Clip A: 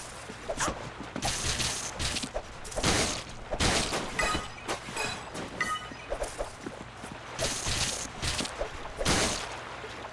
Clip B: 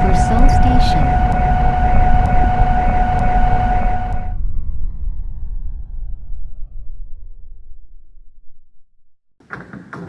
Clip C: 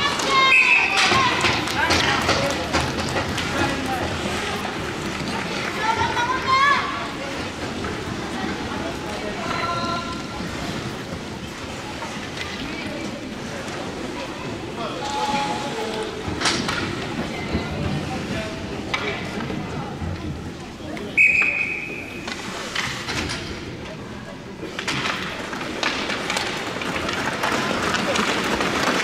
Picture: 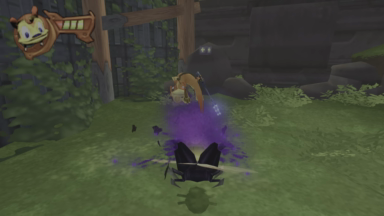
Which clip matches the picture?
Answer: A